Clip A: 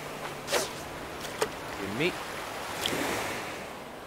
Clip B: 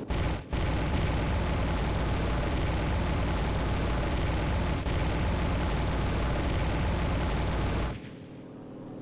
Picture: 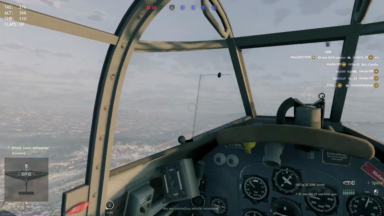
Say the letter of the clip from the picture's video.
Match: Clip B